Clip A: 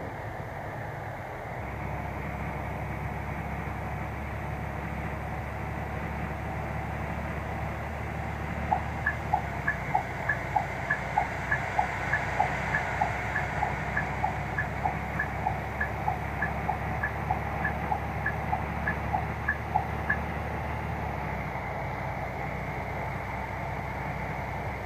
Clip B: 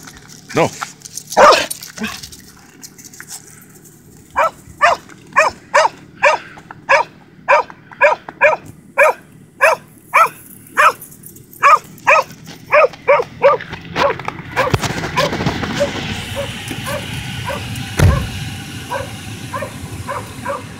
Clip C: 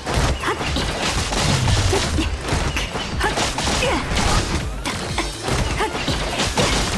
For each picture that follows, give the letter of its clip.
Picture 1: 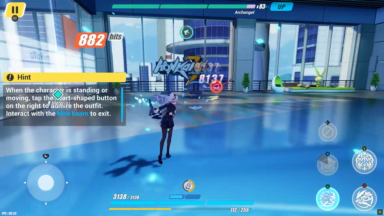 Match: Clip C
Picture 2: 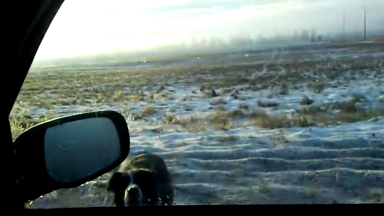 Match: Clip B